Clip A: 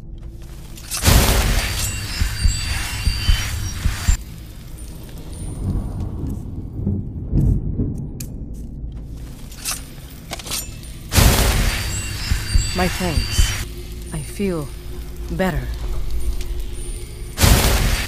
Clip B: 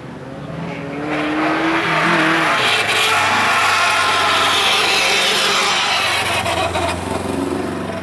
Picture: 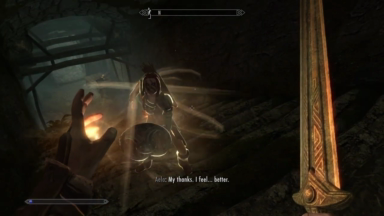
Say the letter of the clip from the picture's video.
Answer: A